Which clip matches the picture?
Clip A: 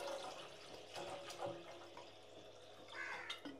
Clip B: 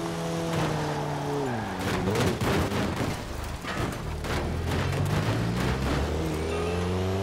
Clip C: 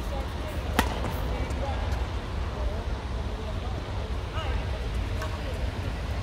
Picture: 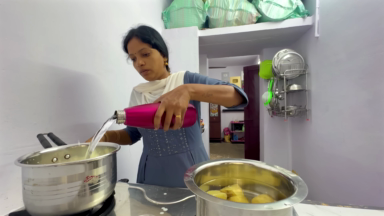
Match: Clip A